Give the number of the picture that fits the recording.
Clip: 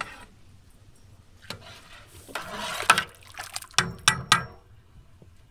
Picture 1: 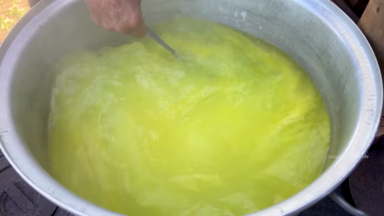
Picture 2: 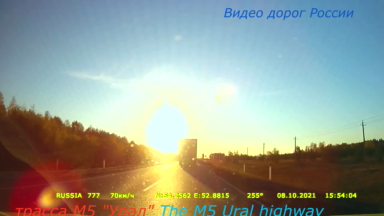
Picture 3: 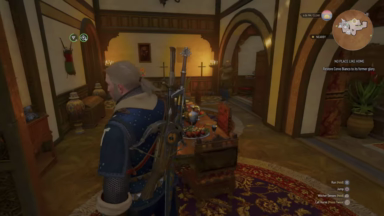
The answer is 1